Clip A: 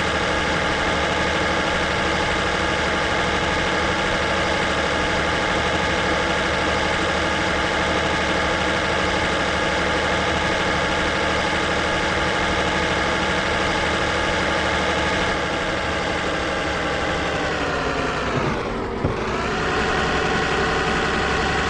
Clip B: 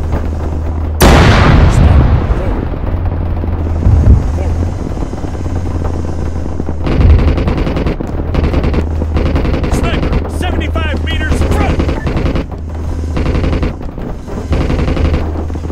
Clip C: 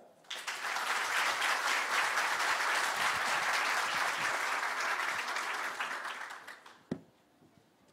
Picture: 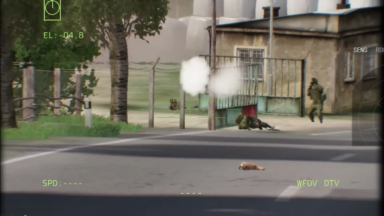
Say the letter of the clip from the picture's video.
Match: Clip B